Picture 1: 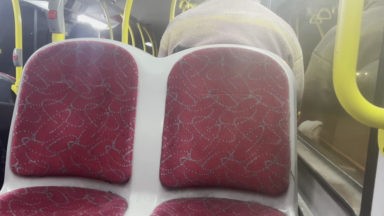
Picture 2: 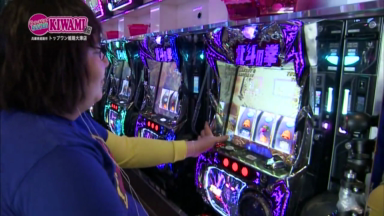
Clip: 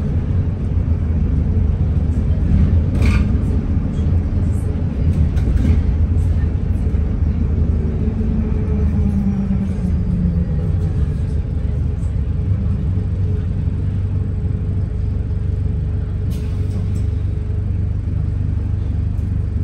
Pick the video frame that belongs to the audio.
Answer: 1